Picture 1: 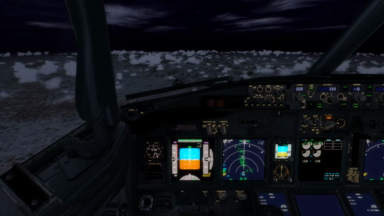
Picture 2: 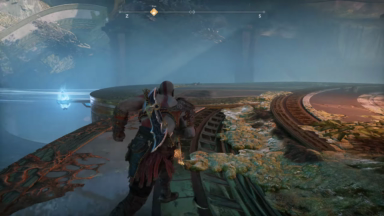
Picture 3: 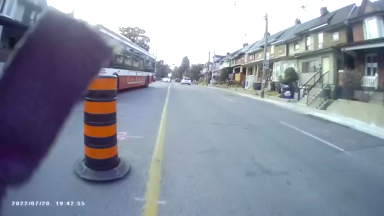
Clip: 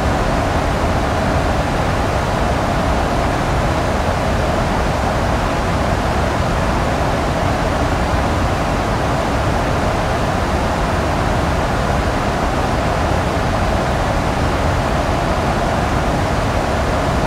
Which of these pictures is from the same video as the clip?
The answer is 1